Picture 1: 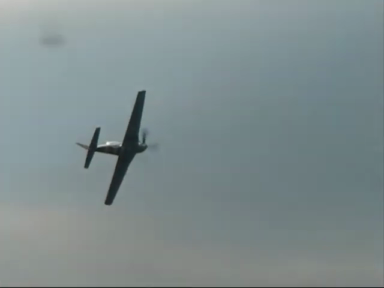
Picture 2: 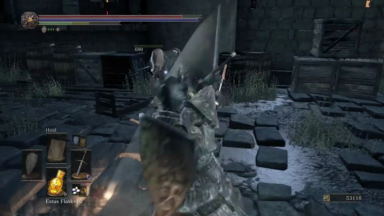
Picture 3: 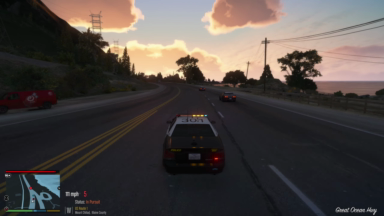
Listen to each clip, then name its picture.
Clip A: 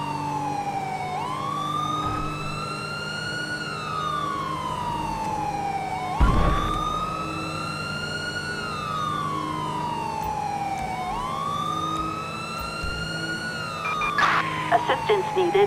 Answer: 3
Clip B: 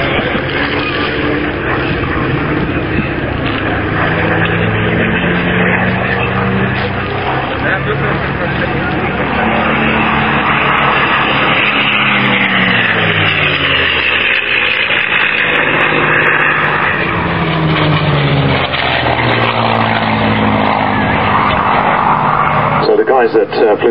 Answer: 1